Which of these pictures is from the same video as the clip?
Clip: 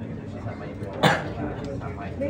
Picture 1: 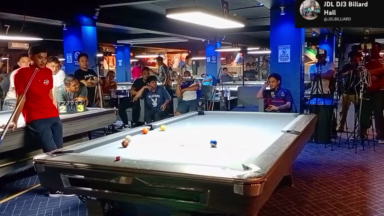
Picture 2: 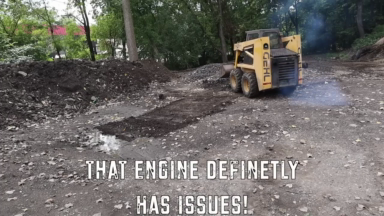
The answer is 1